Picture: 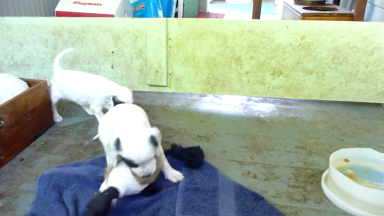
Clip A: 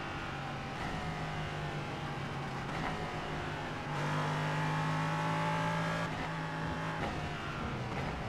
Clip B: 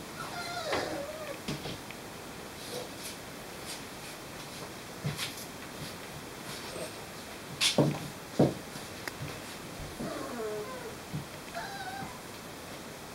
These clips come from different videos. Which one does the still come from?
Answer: B